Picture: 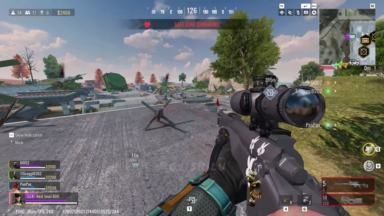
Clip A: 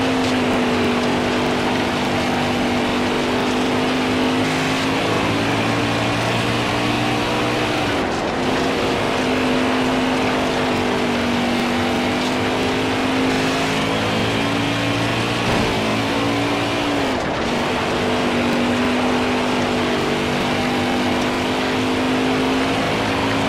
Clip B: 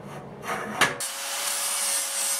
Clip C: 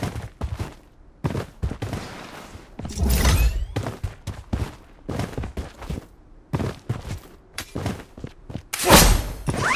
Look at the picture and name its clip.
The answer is C